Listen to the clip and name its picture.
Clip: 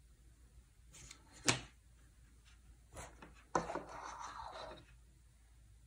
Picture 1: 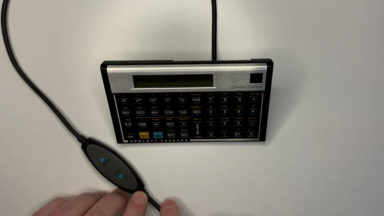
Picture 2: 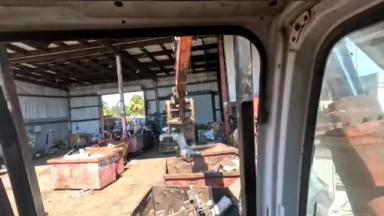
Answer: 1